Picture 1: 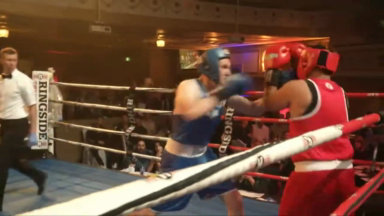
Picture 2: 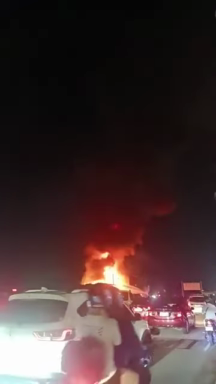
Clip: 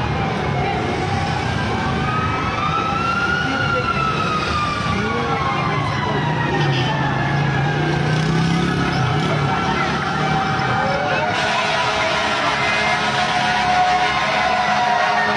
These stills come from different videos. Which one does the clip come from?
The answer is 2